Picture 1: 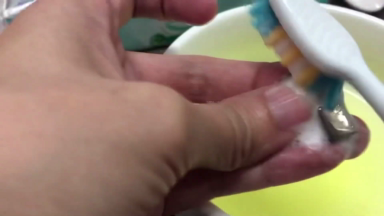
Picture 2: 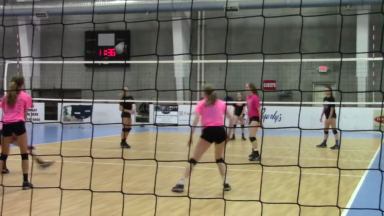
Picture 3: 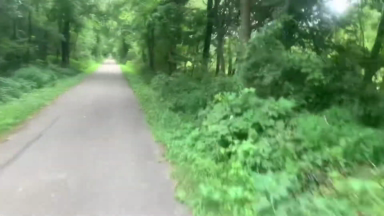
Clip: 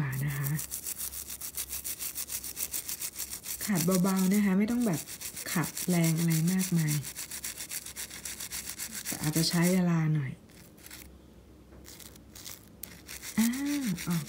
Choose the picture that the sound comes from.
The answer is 1